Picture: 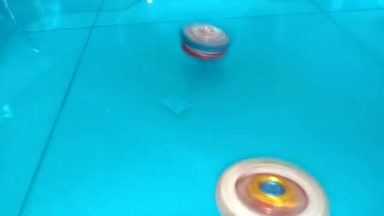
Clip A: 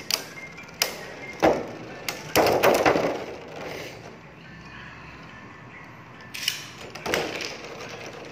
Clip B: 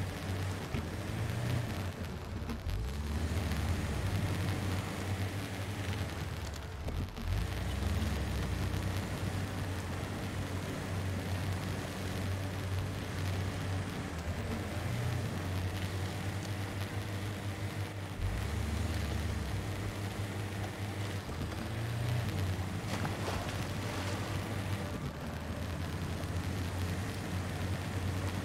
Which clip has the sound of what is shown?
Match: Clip A